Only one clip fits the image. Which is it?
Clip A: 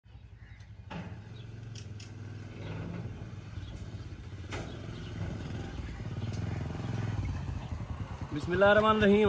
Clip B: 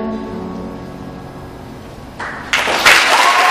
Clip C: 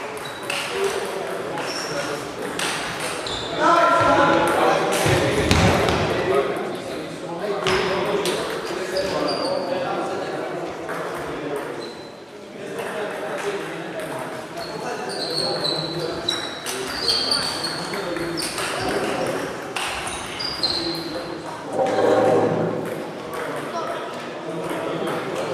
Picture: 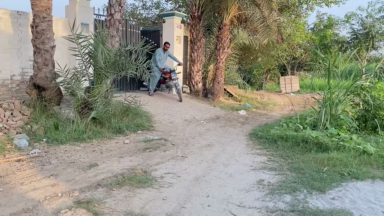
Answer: A